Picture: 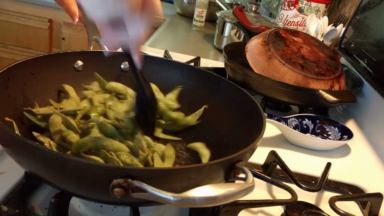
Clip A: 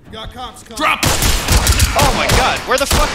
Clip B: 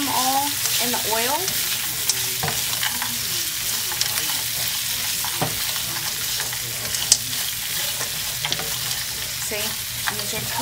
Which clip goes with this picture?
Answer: B